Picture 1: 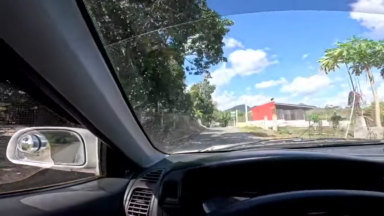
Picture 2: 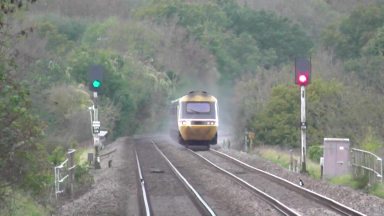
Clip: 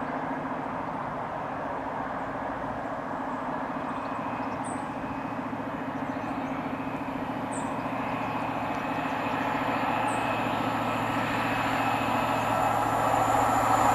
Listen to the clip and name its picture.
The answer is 2